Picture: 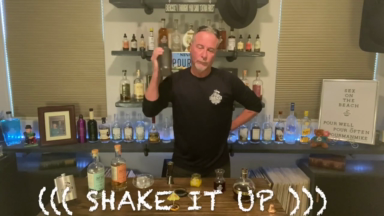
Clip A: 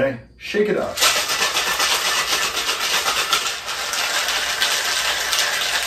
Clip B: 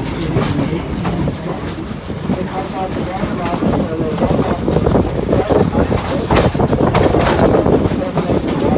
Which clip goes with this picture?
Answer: A